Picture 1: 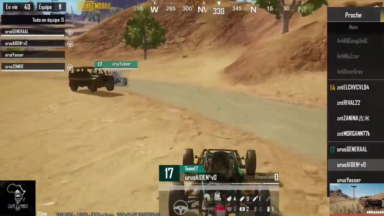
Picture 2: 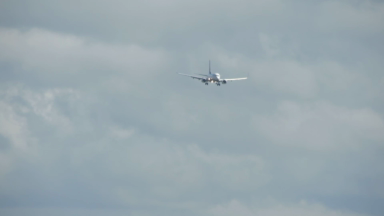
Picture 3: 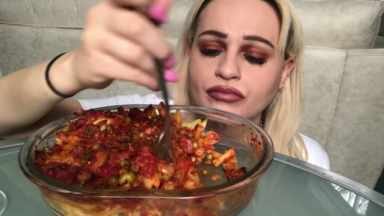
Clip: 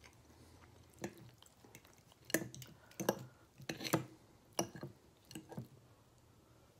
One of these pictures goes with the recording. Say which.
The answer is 3